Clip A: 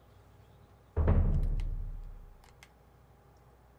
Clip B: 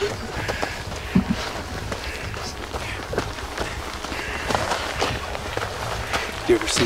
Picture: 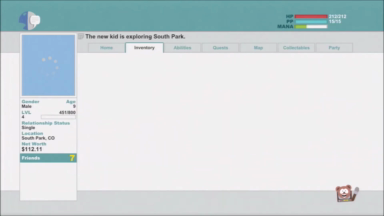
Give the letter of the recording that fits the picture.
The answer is A